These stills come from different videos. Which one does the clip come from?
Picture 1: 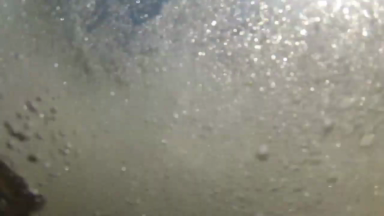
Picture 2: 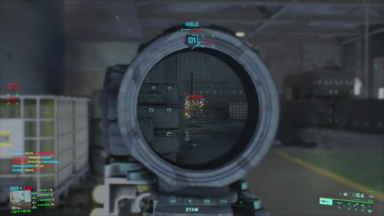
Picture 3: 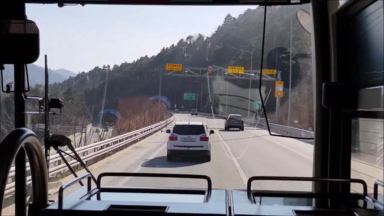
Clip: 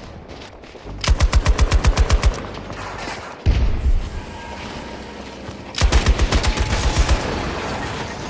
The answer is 2